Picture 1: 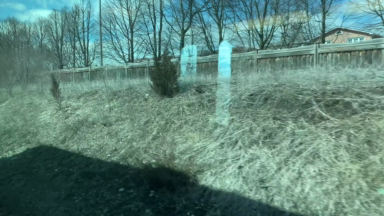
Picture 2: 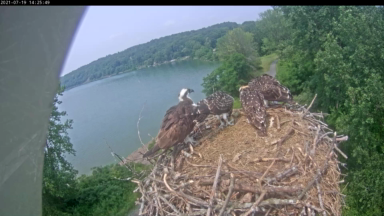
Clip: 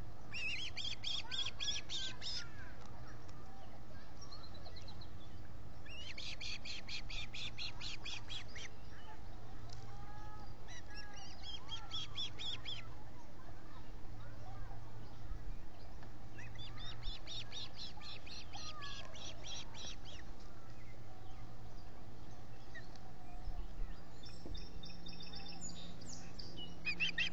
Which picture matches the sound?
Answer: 2